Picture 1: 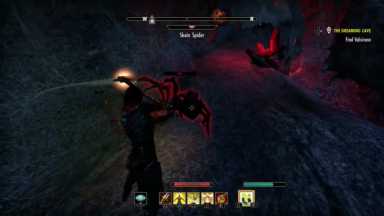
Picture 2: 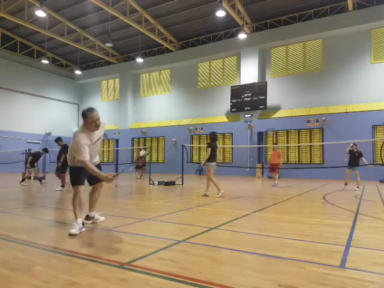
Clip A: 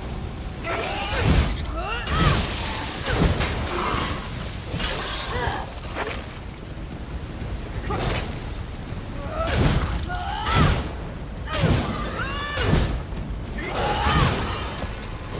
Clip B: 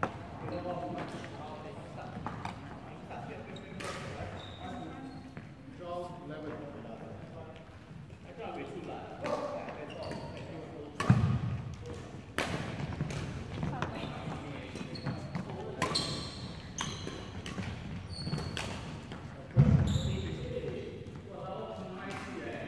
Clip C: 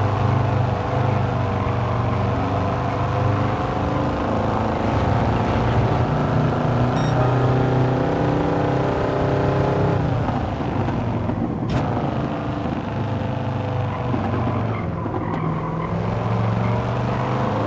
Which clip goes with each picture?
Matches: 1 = A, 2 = B